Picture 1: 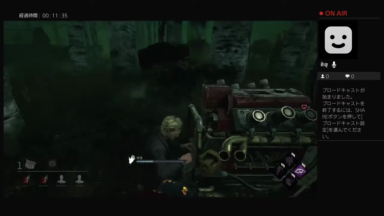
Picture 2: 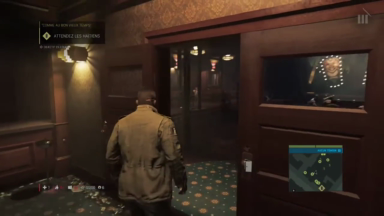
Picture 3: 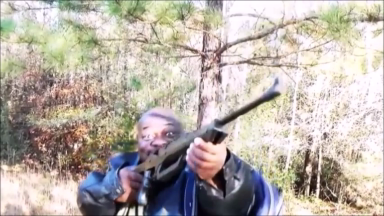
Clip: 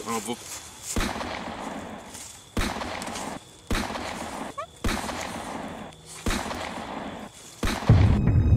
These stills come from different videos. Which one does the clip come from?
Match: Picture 3